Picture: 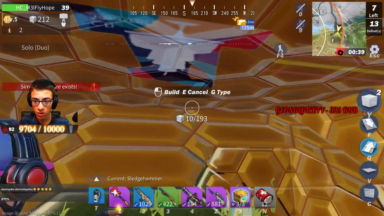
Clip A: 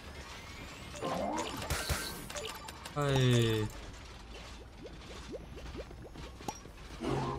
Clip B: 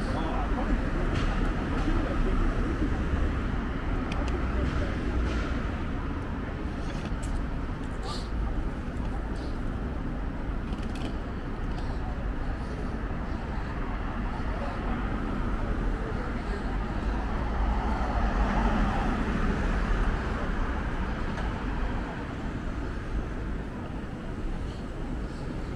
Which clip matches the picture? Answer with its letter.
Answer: A